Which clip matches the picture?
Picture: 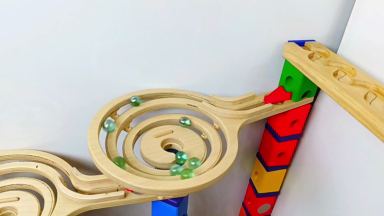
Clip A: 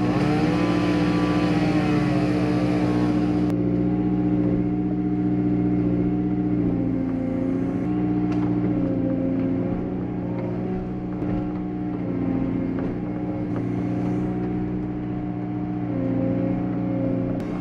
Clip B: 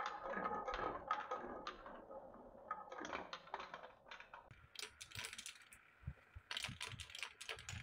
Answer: B